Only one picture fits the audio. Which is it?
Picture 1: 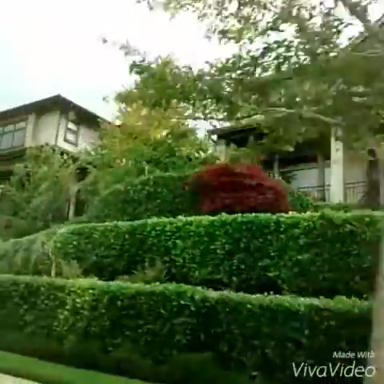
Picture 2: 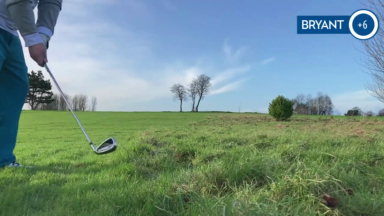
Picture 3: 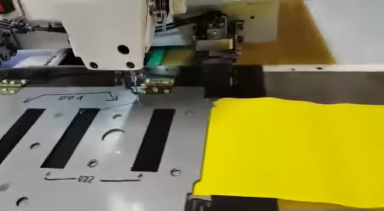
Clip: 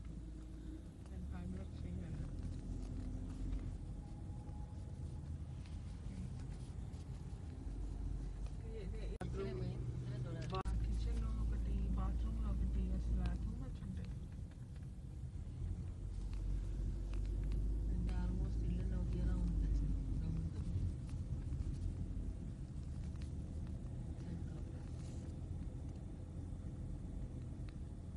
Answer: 1